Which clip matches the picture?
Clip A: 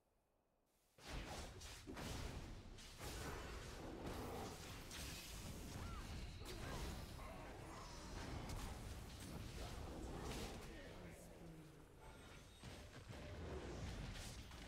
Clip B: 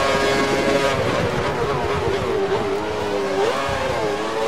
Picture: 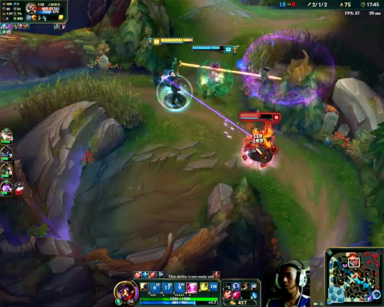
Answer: A